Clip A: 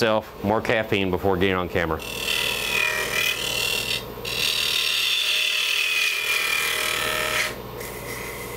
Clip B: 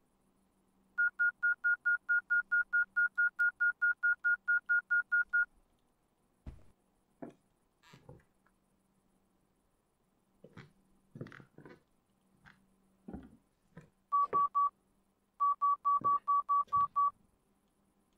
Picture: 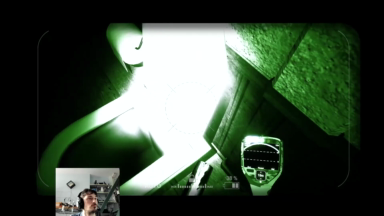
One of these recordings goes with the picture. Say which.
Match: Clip B